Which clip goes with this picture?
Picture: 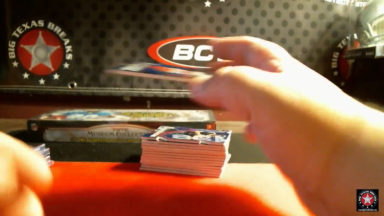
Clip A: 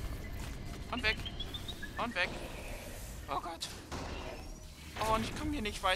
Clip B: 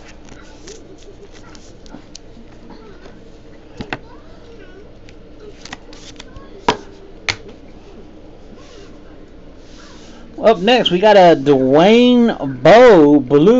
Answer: B